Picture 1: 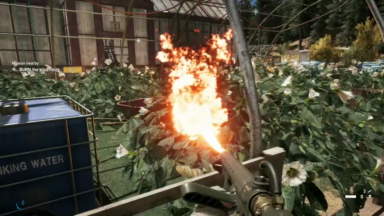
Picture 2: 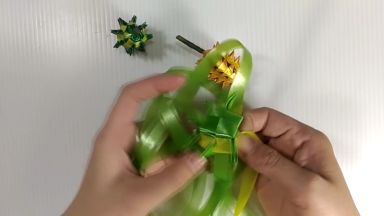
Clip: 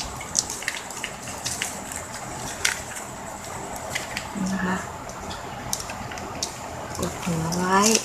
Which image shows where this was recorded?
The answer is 2